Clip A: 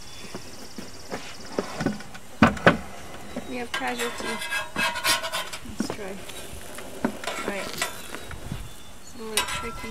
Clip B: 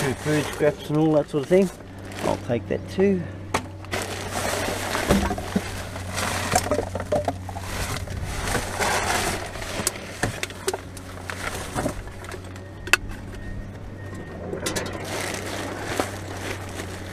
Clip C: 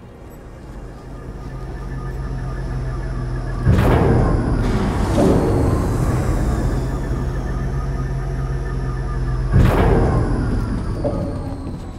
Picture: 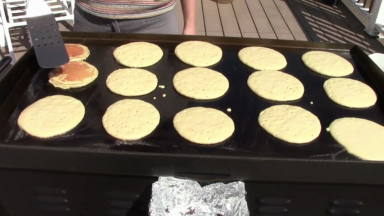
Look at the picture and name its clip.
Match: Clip A